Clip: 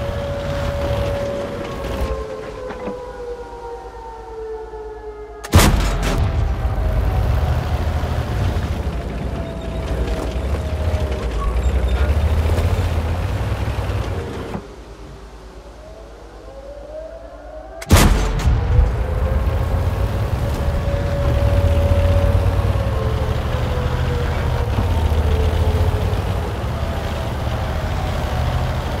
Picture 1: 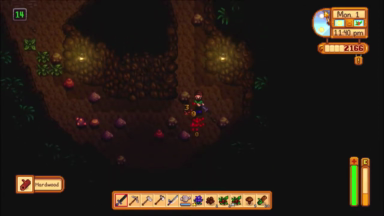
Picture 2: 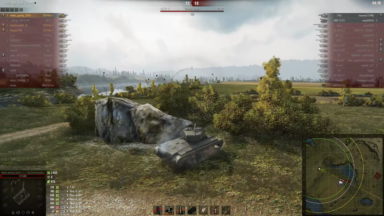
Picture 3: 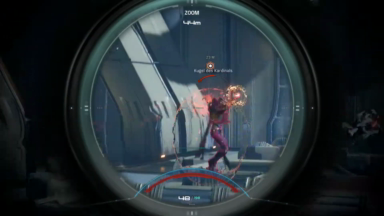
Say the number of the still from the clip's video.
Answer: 2